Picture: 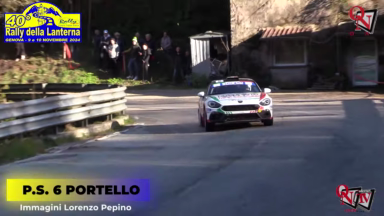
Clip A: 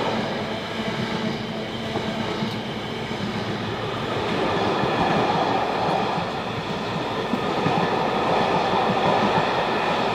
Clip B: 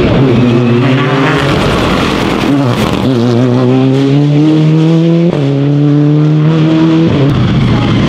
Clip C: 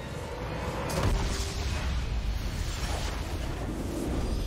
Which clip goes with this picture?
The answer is B